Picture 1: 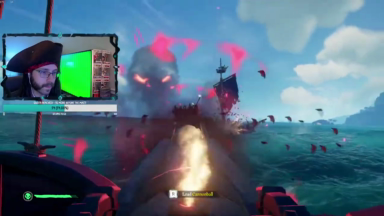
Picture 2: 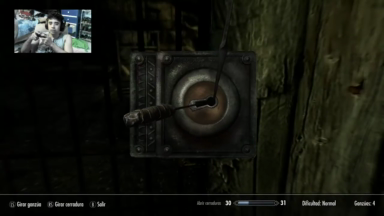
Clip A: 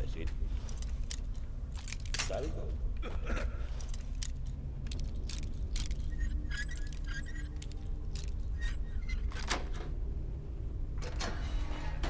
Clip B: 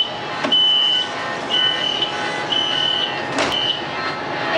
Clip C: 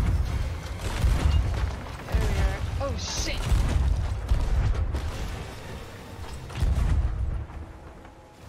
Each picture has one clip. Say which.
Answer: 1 C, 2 A